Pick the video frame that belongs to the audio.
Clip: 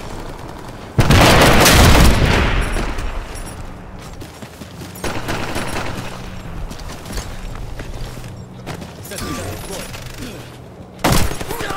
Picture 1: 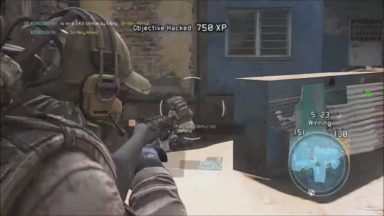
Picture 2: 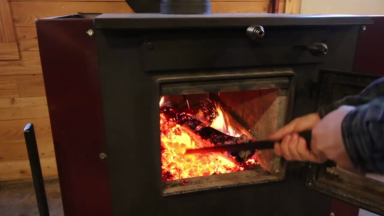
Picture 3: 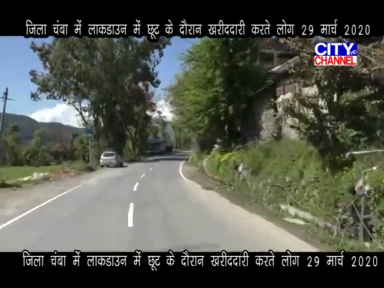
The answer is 1